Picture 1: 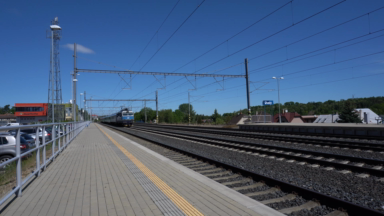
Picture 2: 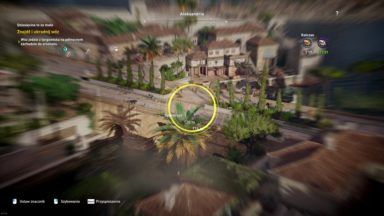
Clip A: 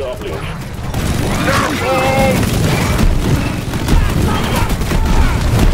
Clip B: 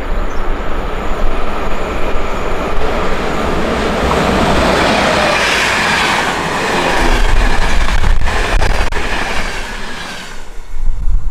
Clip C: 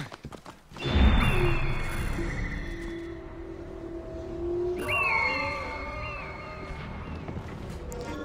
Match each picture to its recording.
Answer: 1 B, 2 C